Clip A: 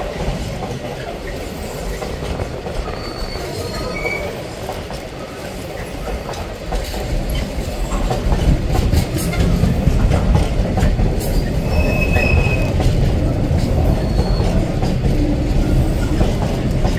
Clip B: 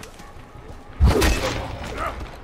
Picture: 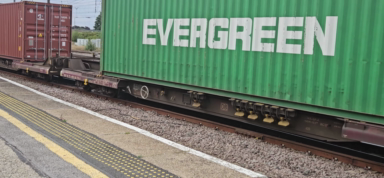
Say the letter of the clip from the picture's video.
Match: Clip A